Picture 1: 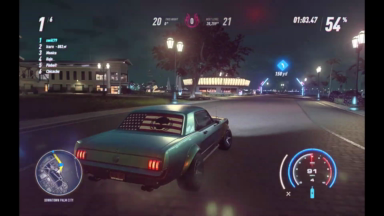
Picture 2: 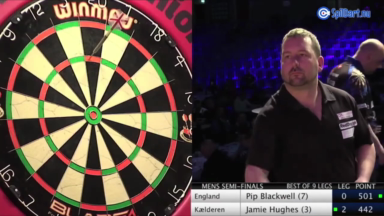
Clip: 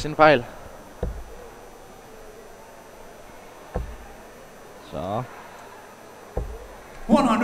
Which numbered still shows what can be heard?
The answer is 2